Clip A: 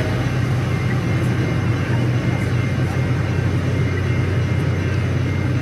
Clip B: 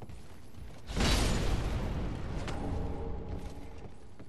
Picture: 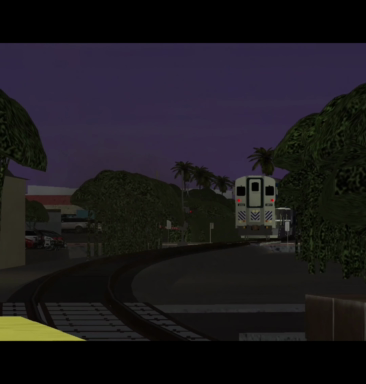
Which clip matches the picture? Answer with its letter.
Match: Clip A